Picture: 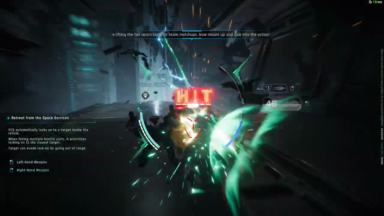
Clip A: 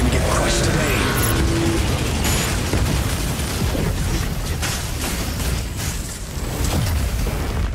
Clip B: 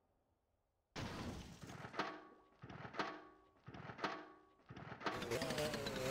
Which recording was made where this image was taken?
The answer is A